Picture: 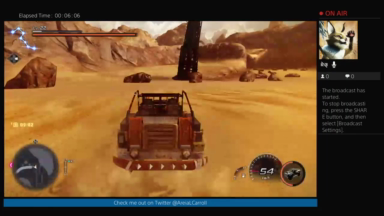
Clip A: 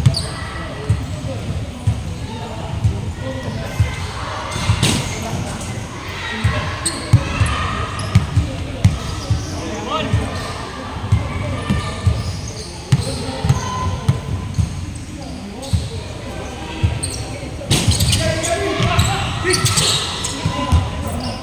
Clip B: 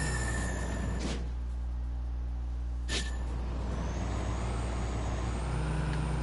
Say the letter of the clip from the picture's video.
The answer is B